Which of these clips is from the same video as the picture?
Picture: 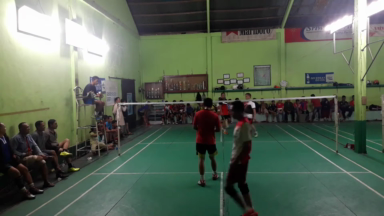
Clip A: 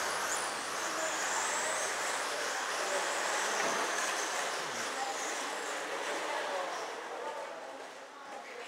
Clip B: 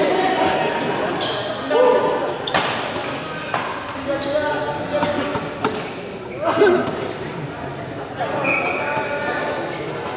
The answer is B